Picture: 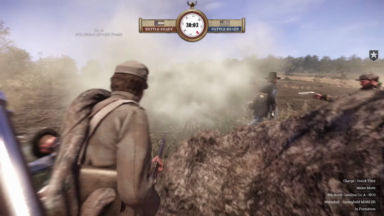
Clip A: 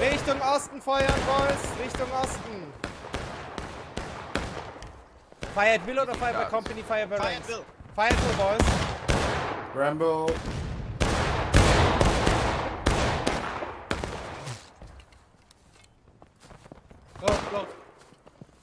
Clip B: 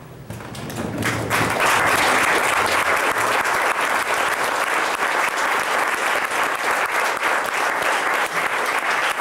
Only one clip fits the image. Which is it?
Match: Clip A